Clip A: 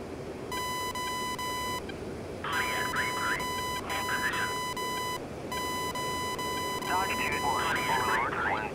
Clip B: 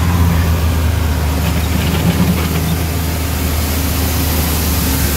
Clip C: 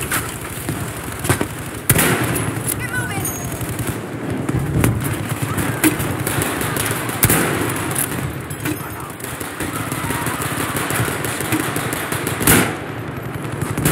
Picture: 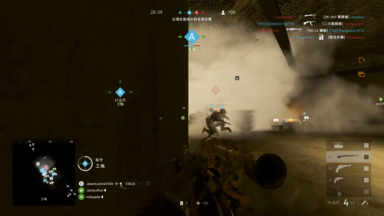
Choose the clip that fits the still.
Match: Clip C